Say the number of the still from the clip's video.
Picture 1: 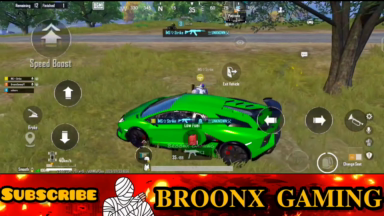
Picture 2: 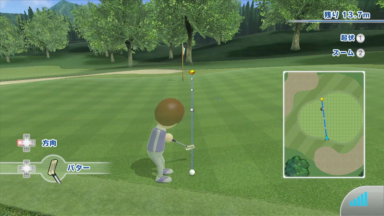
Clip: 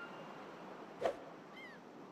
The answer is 2